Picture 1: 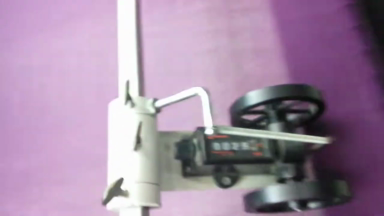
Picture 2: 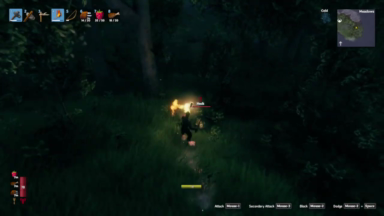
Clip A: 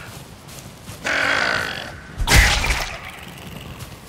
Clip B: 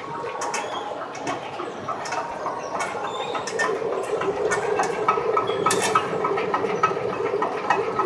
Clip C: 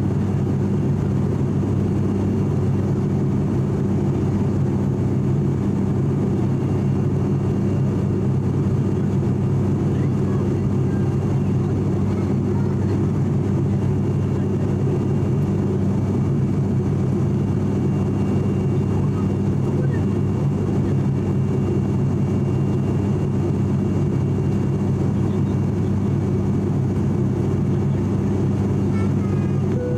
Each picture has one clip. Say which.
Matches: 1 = B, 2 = A